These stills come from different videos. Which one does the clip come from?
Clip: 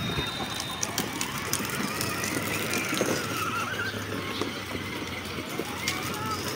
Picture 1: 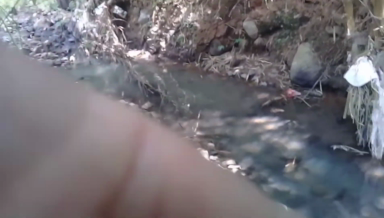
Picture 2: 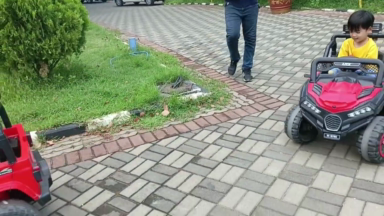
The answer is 2